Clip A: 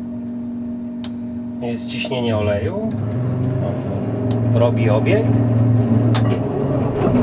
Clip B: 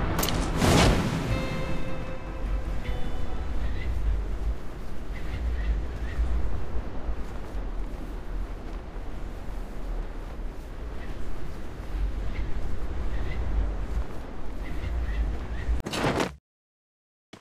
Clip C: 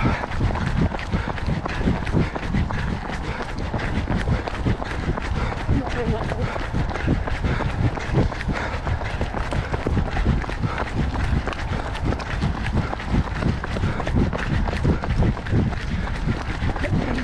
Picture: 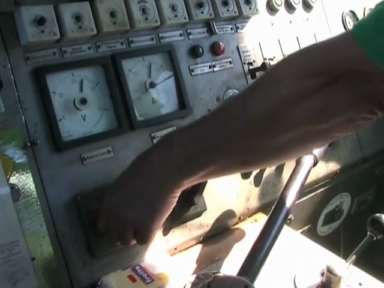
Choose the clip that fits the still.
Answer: A